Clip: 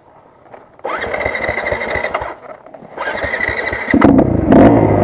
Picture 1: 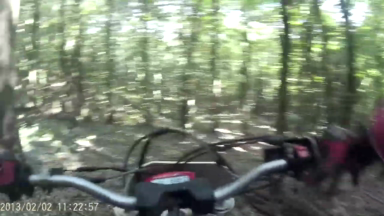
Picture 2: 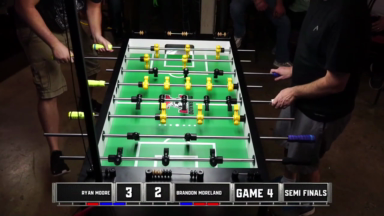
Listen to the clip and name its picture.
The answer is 1